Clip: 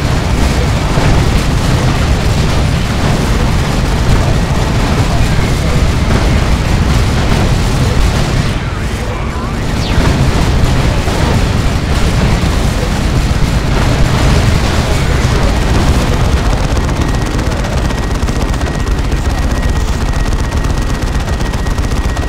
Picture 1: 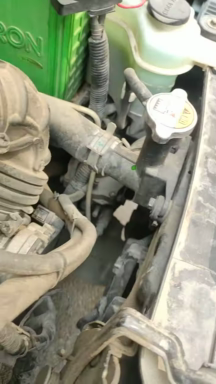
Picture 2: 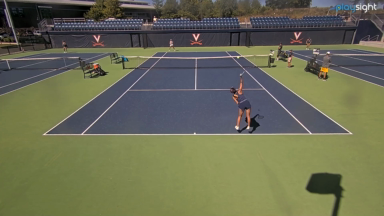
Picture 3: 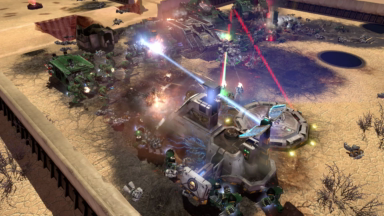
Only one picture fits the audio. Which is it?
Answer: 3